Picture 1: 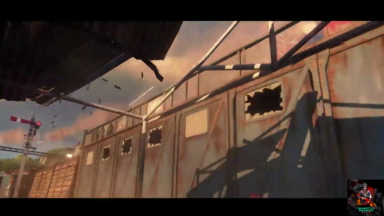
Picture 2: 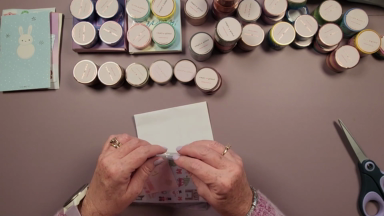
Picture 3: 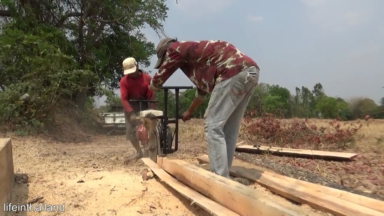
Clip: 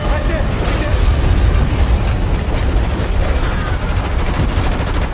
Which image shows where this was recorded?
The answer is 1